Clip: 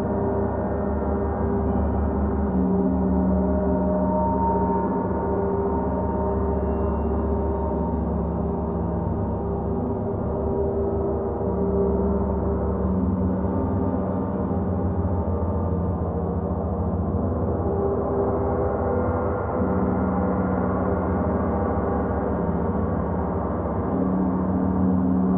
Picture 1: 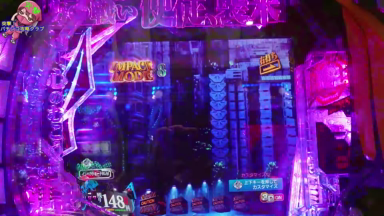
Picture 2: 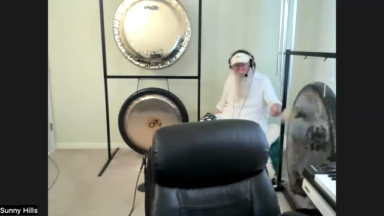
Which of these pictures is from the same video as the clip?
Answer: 2